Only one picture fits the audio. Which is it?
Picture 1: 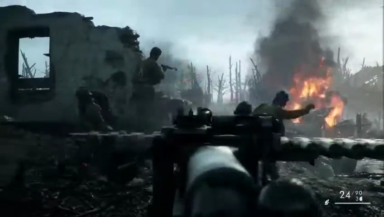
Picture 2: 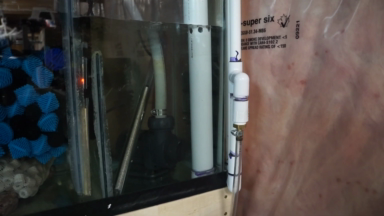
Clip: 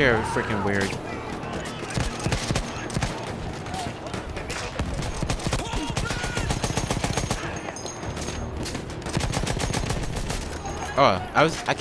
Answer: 1